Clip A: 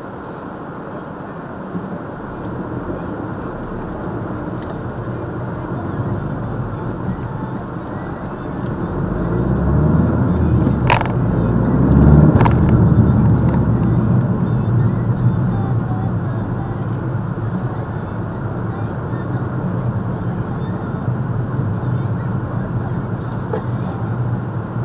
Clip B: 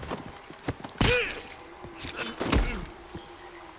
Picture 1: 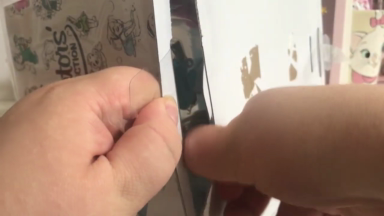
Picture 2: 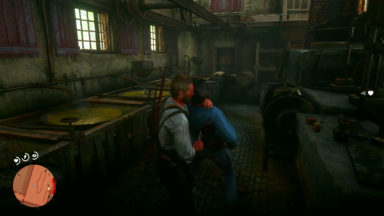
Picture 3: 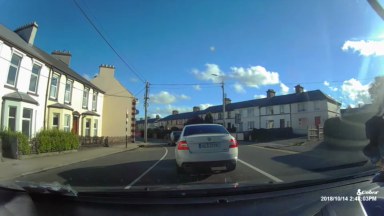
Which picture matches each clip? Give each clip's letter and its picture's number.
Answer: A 3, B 2